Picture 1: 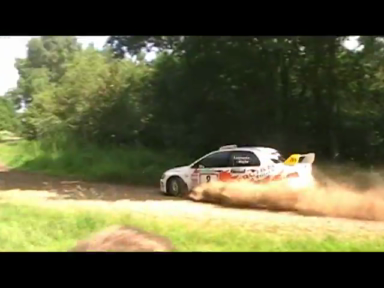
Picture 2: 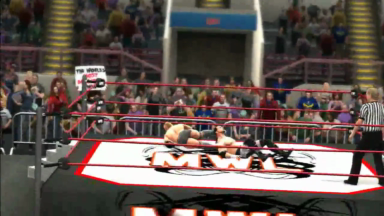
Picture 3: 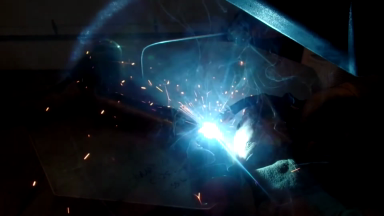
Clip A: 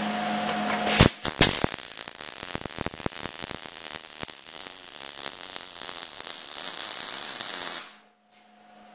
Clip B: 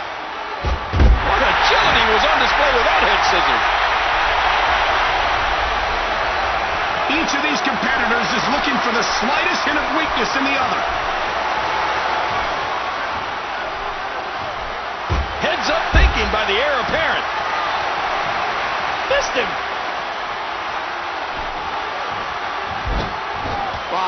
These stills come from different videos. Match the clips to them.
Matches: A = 3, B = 2